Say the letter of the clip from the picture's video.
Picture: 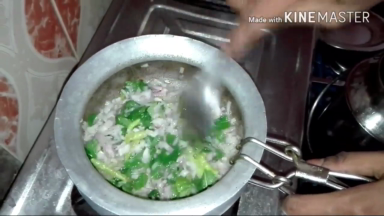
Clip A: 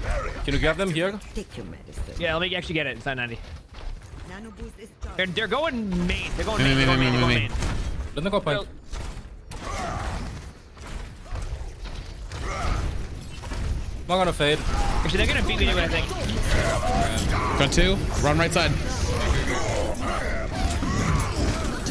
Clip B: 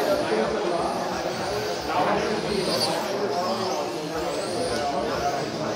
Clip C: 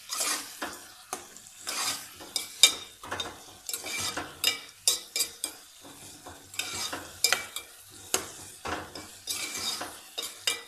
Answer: C